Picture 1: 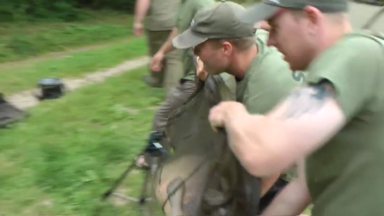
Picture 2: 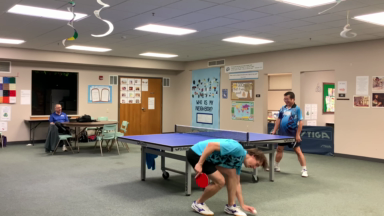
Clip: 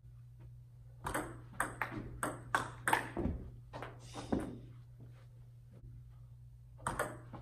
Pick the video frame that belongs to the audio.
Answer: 2